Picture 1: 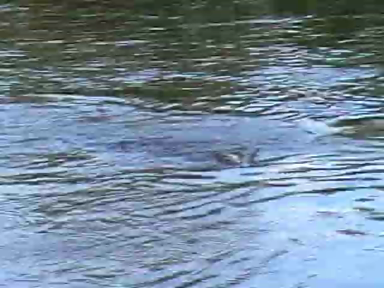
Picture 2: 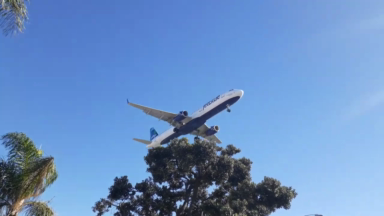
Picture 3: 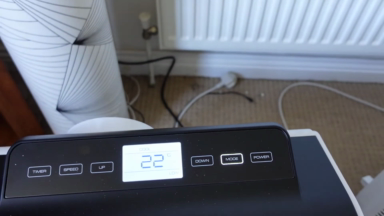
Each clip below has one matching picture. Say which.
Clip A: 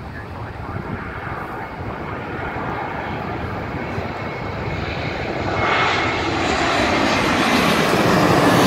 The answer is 2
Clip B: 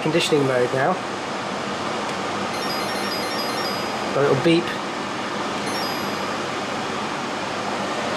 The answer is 3